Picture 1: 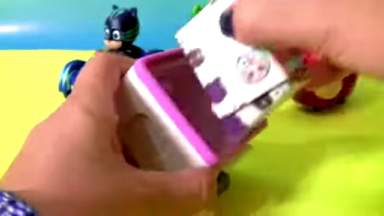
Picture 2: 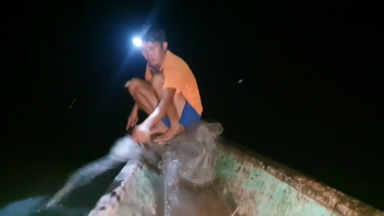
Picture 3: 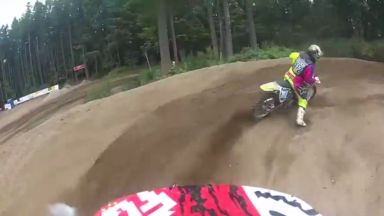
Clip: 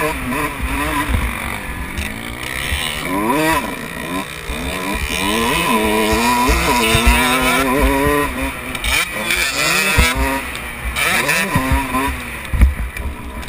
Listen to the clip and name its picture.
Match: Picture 3